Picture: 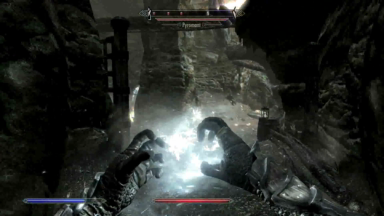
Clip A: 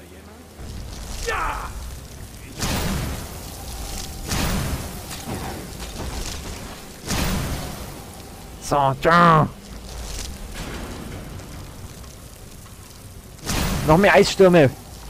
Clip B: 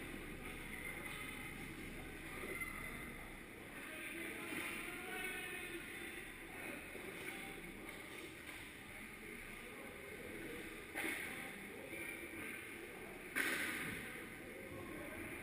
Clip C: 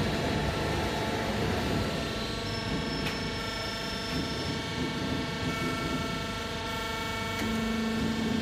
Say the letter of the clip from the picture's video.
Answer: A